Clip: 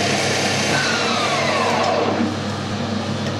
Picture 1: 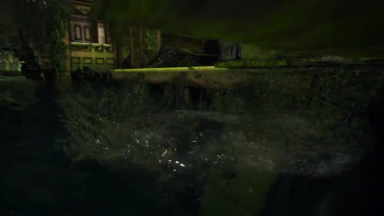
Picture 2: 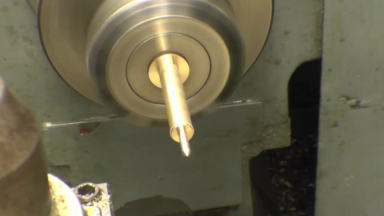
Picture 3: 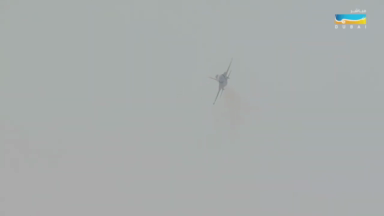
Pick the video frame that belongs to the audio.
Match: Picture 2